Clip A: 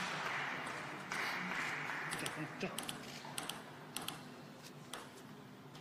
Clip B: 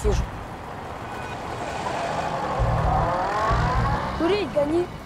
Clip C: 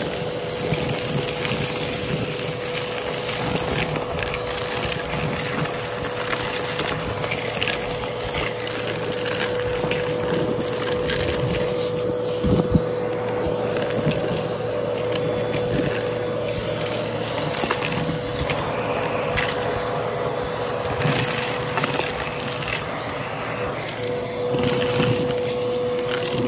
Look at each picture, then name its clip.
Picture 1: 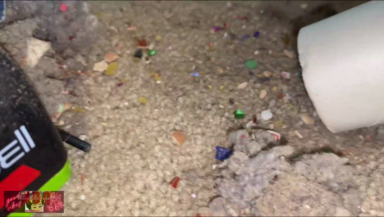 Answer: C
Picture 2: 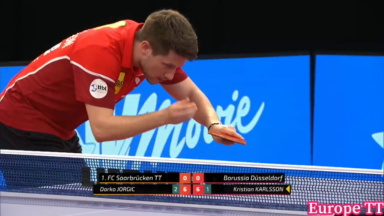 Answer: A